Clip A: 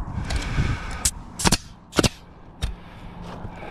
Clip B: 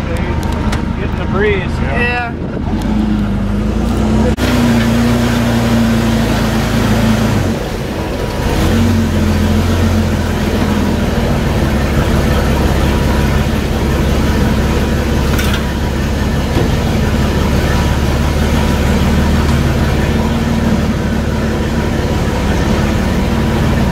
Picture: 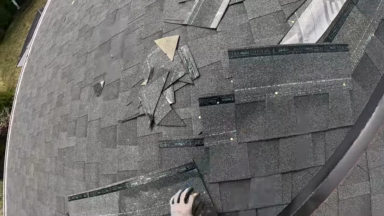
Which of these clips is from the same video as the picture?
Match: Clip A